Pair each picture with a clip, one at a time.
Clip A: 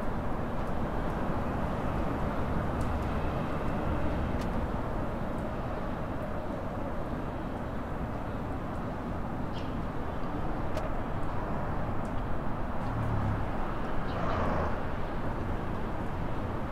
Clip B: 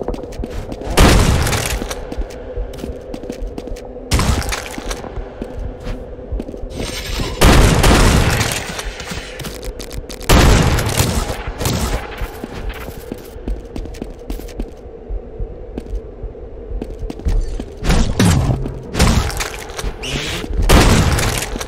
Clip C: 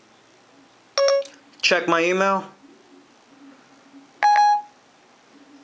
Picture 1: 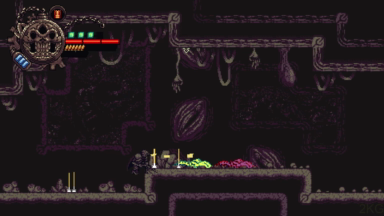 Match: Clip B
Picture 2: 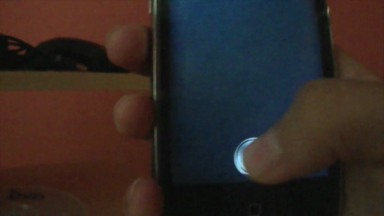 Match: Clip C